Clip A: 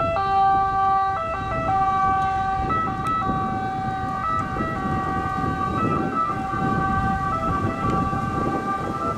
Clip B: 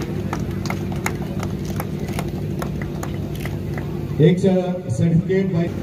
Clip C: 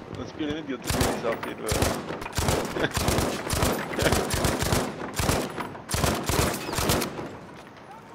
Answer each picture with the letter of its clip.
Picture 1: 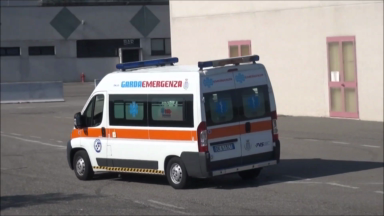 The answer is A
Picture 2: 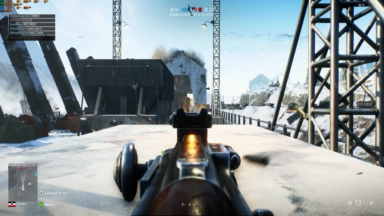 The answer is C